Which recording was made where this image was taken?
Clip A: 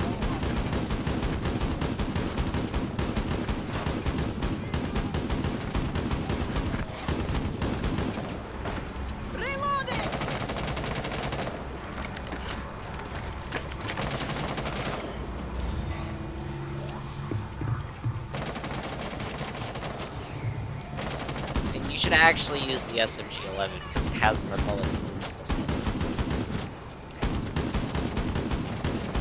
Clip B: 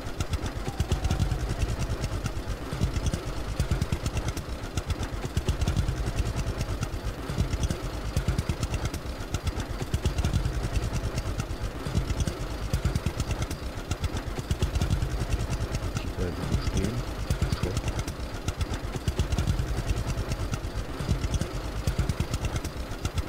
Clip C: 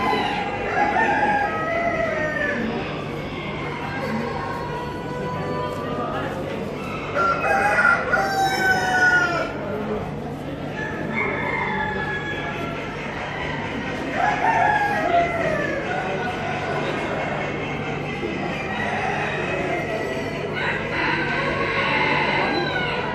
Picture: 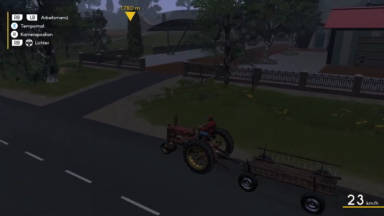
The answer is B